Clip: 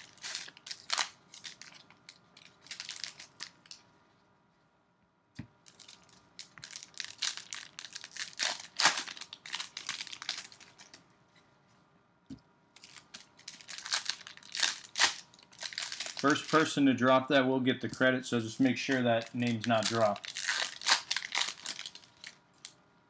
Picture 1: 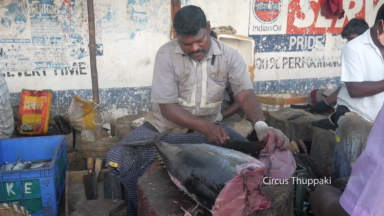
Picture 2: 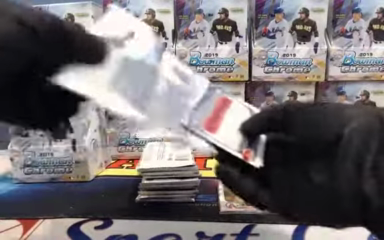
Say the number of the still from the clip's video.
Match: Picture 2